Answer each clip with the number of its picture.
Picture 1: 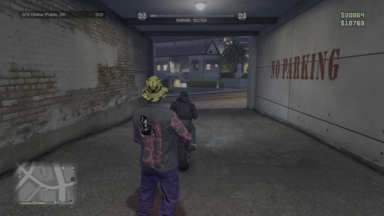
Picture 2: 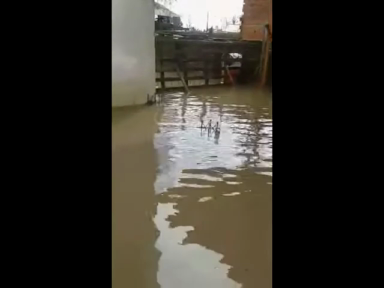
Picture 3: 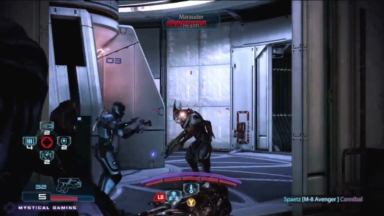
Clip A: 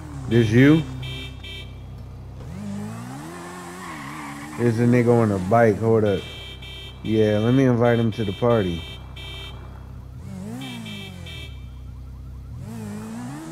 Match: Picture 1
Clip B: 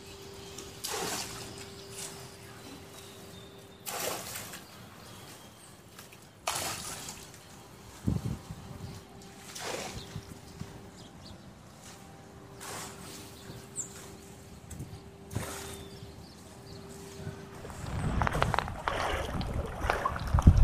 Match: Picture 2